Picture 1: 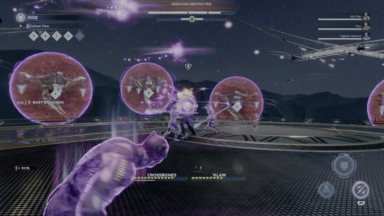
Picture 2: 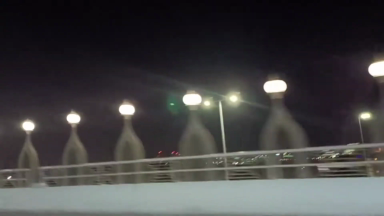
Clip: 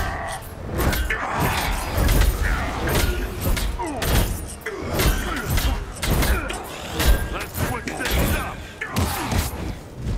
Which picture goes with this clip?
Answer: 1